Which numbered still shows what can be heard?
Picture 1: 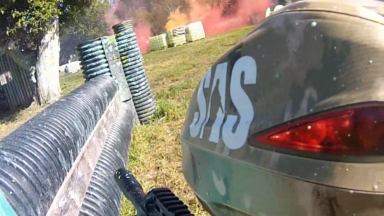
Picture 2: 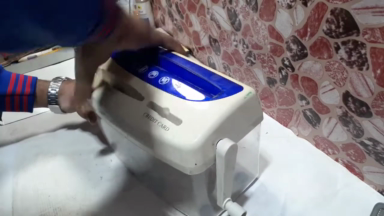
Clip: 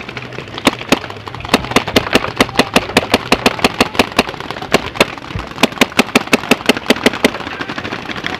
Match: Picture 1